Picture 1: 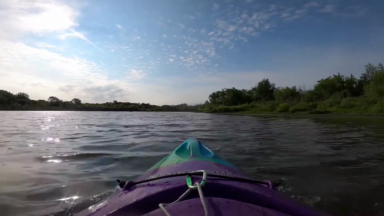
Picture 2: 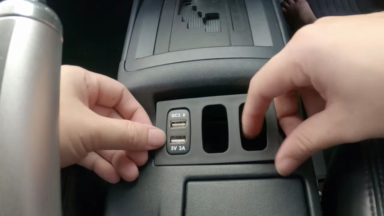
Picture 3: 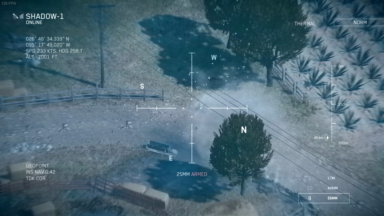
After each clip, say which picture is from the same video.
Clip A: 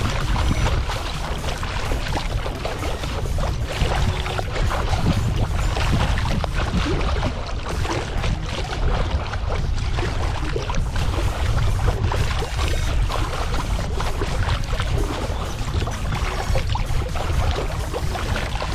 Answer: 1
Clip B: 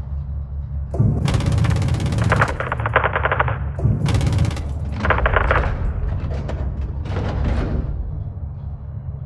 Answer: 3